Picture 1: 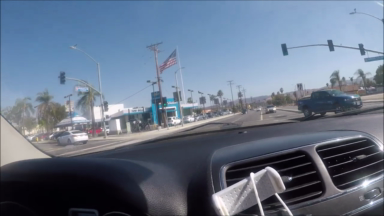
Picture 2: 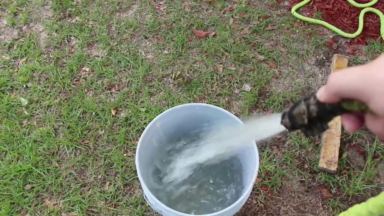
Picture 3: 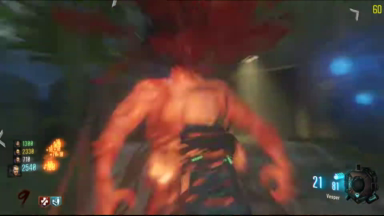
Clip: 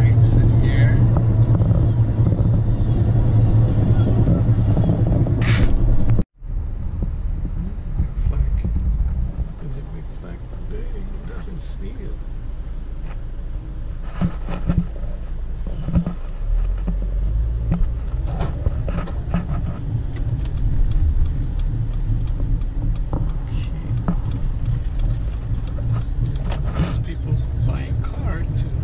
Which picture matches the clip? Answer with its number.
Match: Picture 1